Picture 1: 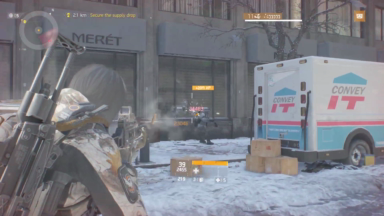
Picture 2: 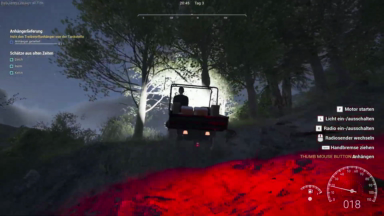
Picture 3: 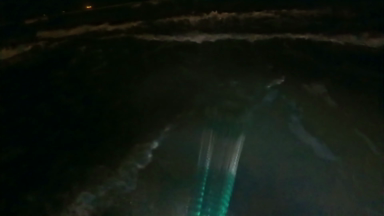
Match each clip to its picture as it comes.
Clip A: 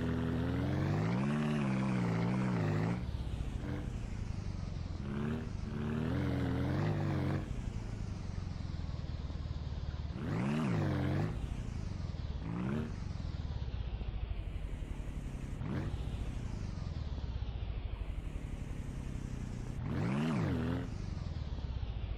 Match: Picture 2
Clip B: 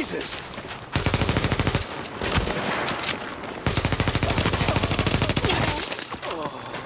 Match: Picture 1